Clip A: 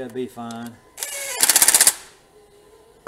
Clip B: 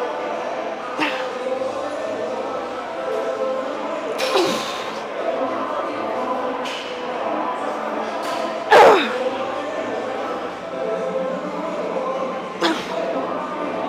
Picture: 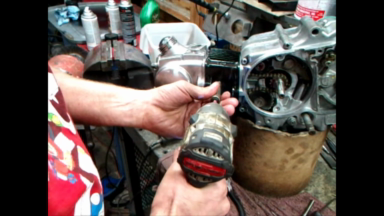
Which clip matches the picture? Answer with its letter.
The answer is A